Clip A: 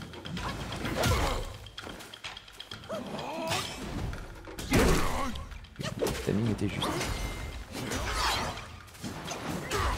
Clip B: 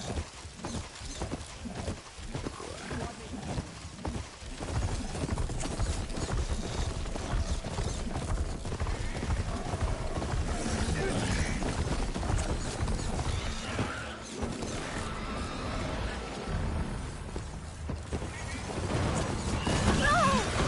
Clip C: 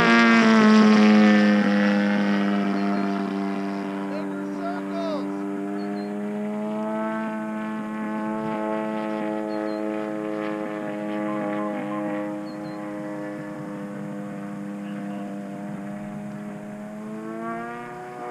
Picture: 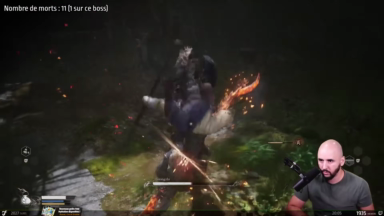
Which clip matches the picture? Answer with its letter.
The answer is A